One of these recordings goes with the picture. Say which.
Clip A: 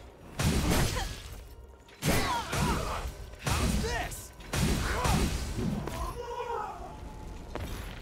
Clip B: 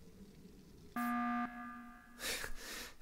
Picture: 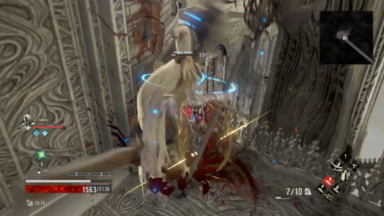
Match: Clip A